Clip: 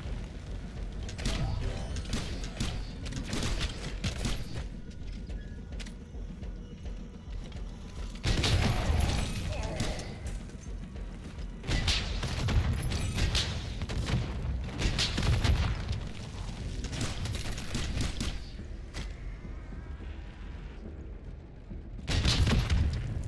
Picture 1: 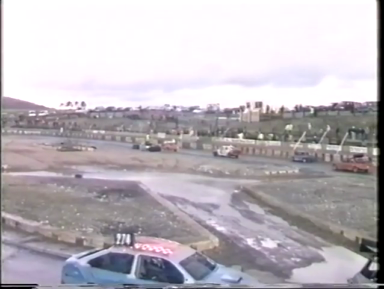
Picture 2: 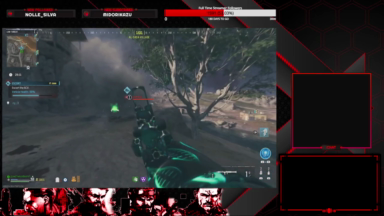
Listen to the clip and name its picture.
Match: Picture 2